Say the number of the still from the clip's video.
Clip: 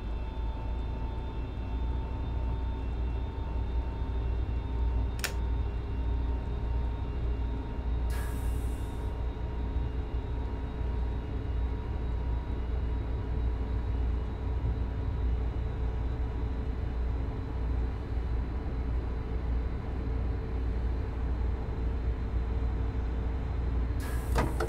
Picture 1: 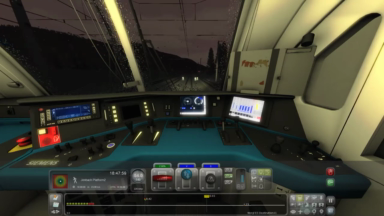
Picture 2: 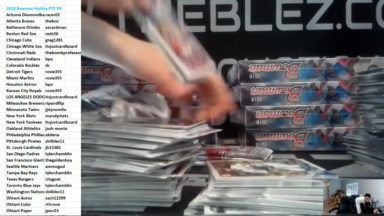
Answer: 1